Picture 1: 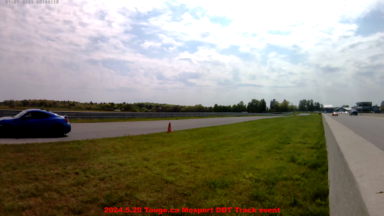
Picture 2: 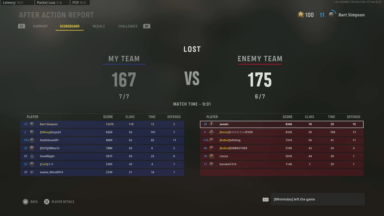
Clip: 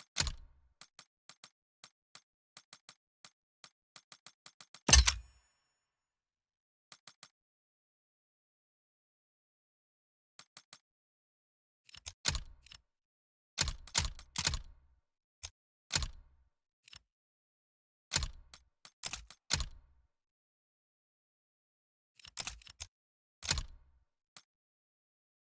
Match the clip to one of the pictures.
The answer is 2